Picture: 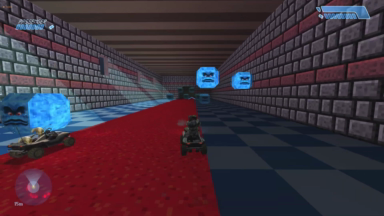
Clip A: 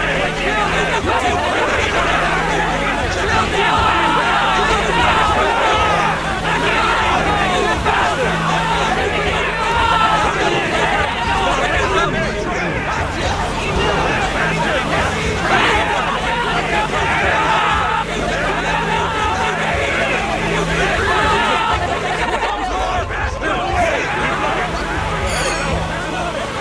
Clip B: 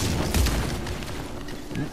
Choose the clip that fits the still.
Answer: A